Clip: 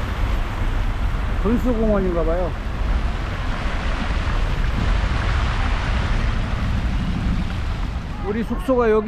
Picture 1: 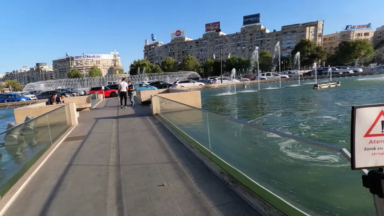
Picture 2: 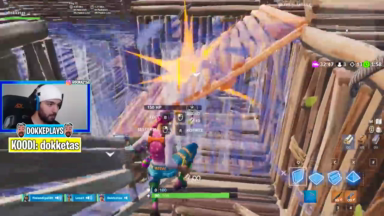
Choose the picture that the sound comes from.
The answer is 1